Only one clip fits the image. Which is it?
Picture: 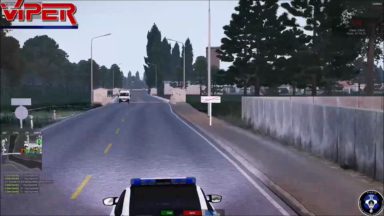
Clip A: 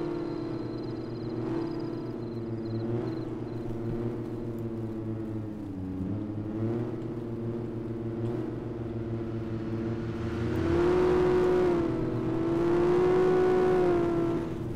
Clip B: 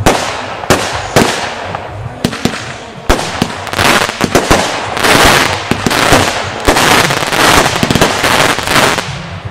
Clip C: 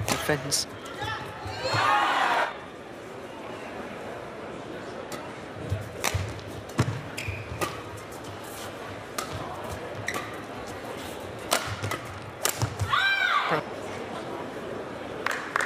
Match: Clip A